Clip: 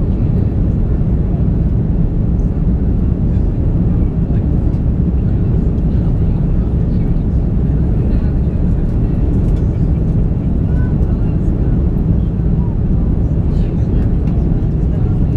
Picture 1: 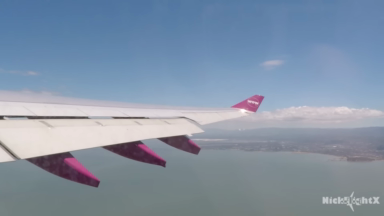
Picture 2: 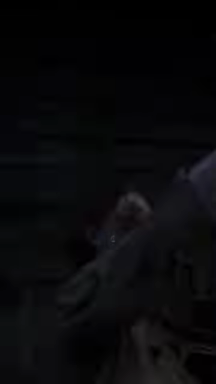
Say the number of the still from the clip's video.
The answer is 1